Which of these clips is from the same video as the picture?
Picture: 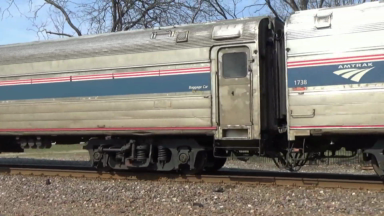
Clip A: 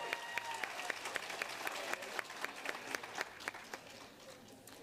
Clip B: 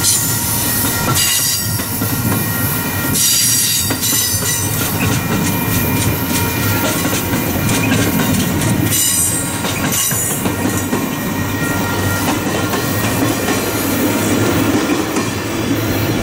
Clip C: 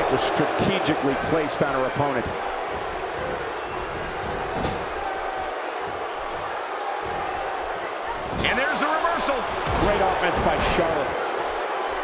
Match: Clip B